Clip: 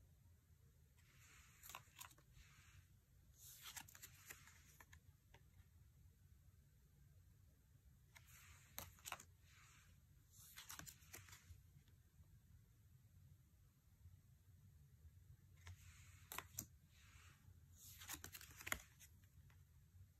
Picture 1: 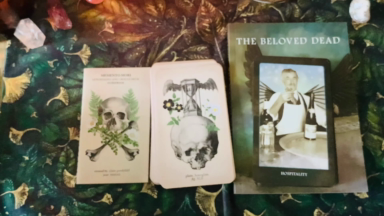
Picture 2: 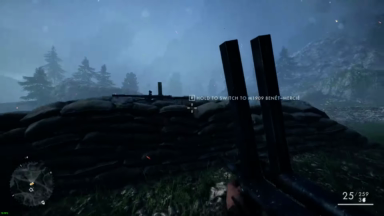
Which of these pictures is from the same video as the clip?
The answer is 1